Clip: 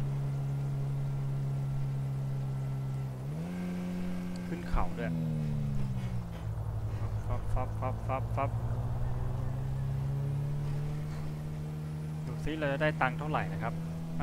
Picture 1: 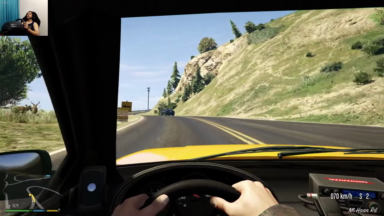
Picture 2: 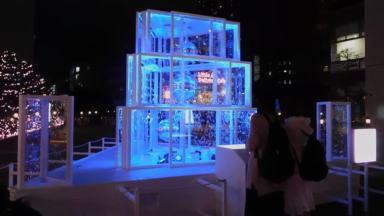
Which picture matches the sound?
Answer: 1